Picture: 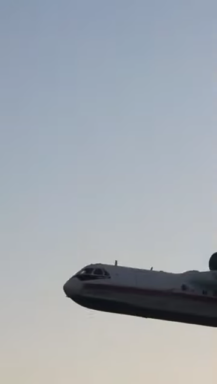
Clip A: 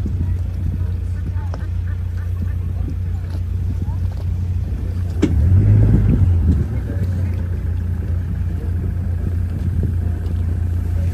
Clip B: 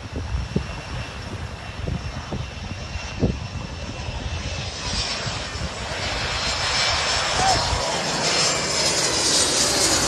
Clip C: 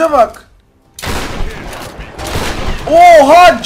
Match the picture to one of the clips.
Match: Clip B